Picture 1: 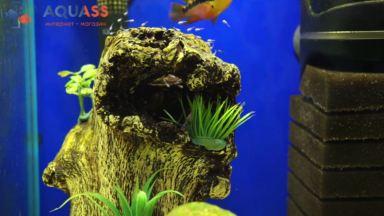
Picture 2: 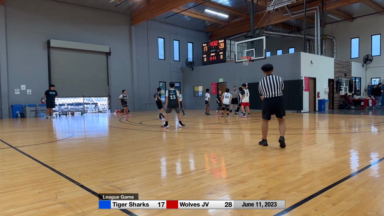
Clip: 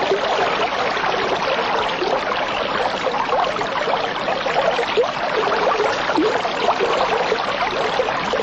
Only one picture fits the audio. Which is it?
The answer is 1